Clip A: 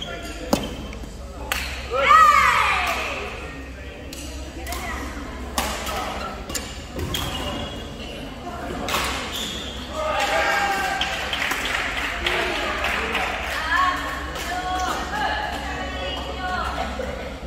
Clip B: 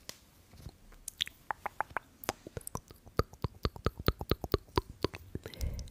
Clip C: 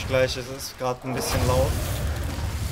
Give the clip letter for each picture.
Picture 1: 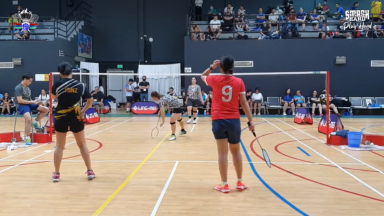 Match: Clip A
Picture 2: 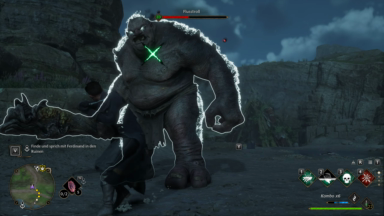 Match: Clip C